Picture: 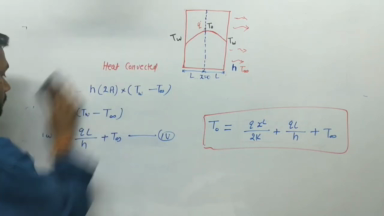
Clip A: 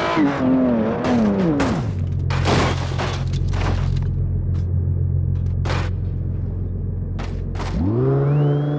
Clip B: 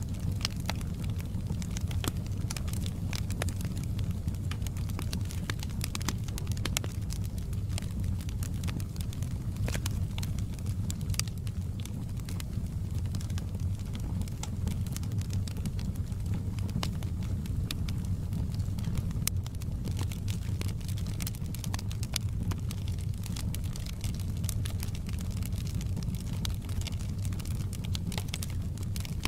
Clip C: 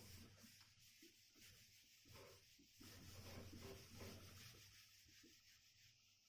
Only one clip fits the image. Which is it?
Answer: C